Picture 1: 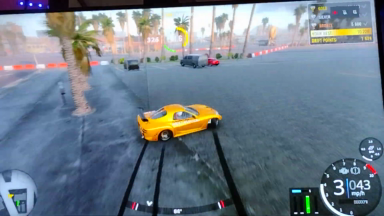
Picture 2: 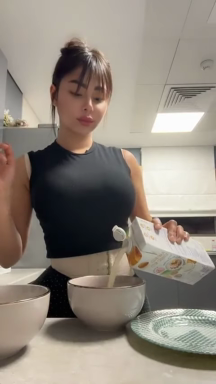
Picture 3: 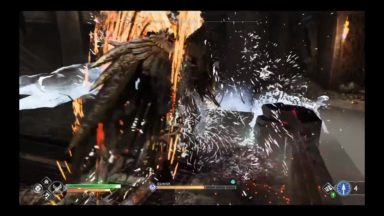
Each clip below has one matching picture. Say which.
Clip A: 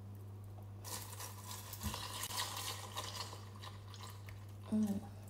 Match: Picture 2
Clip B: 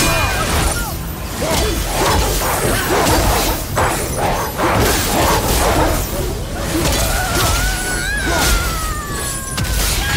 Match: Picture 3